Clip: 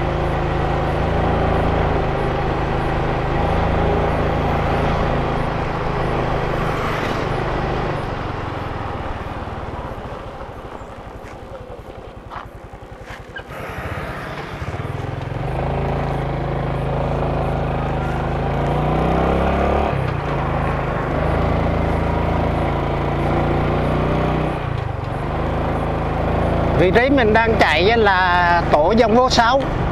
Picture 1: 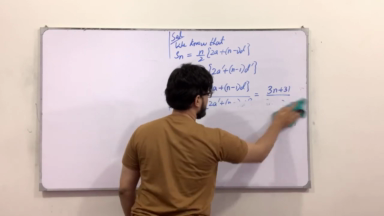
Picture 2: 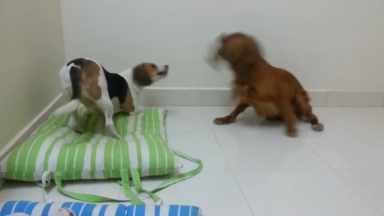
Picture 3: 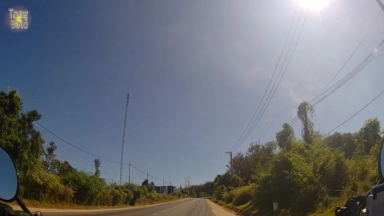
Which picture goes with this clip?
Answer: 3